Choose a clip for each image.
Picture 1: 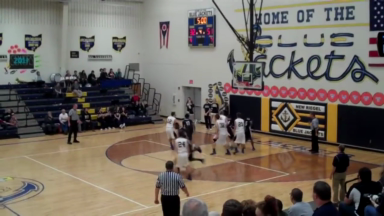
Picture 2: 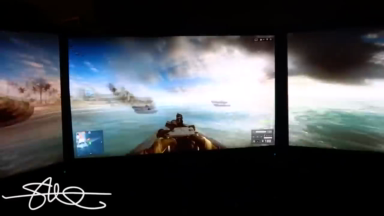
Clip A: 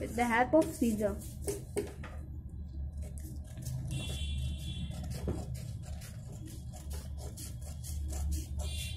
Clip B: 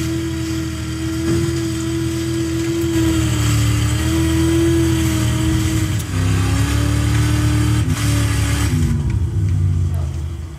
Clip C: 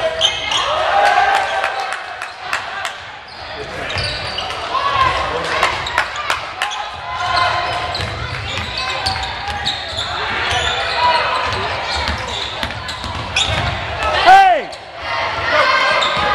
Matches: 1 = C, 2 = B